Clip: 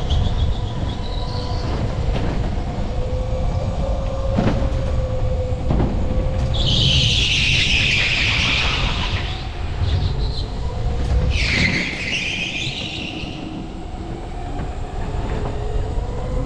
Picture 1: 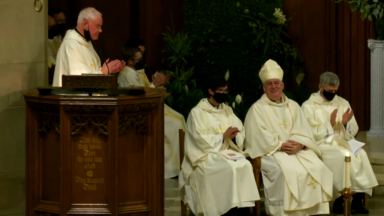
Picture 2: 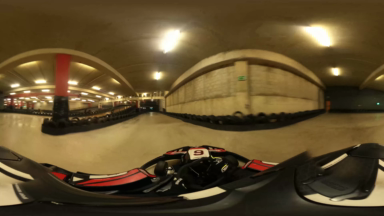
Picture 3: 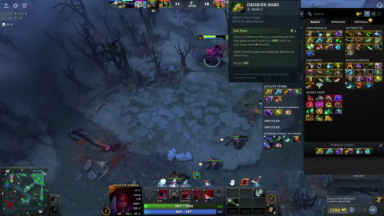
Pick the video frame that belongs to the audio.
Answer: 2